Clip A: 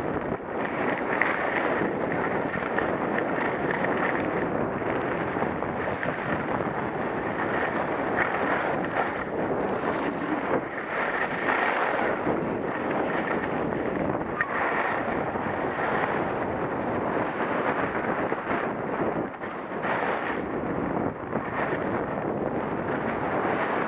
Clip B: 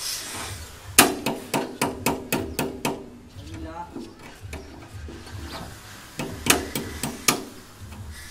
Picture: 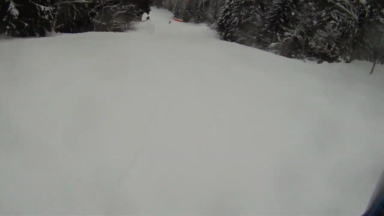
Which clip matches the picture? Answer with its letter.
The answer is A